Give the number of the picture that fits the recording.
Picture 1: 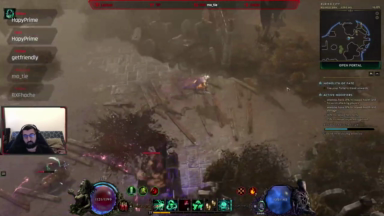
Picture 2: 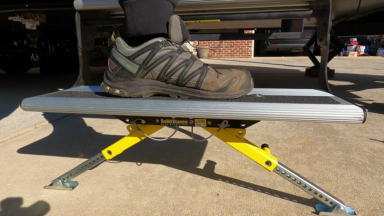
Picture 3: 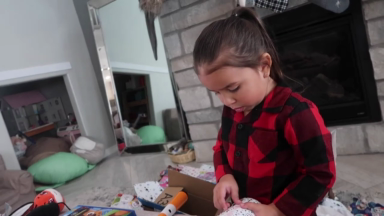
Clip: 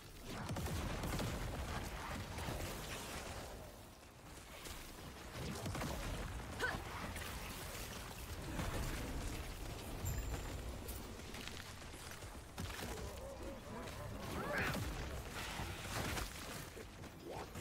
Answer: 1